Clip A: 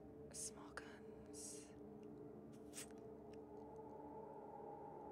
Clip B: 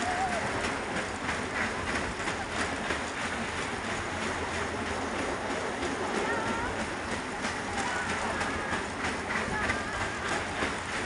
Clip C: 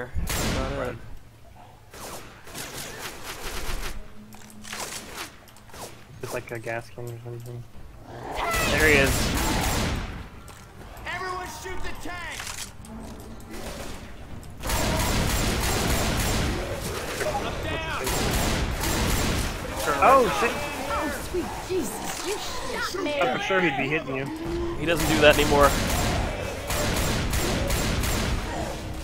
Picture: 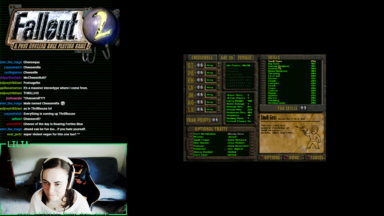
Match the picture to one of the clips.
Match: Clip A